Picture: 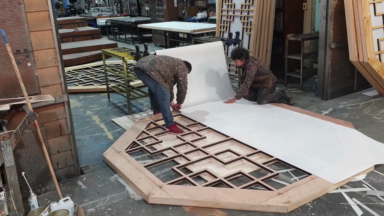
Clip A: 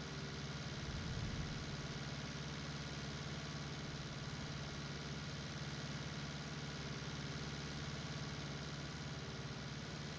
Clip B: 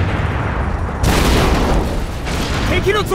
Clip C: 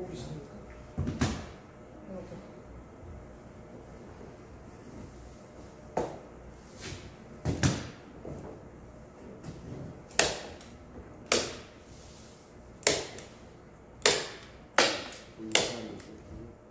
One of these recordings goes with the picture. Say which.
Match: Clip C